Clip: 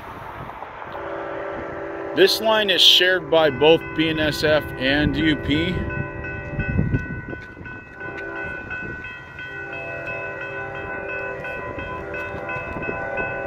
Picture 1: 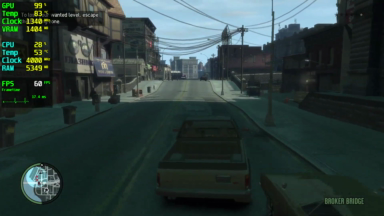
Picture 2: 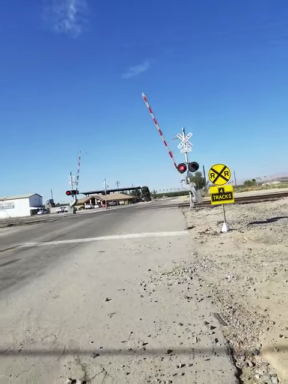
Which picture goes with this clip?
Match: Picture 2